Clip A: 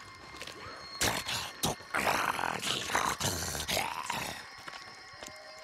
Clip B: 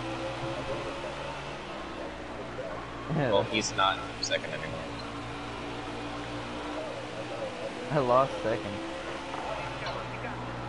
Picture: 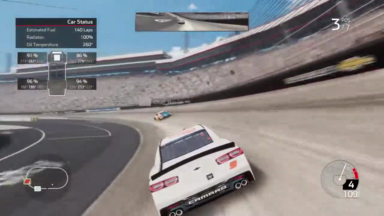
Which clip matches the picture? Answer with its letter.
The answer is B